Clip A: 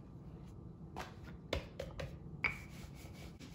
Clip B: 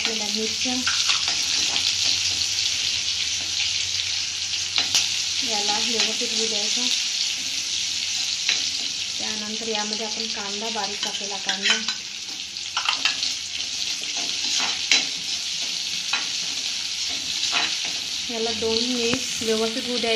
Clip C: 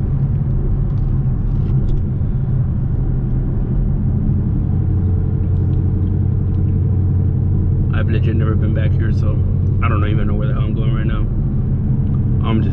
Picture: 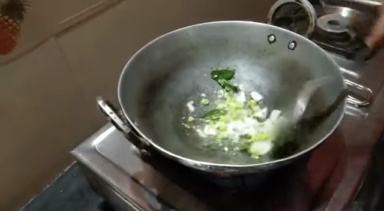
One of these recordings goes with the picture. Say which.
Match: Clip B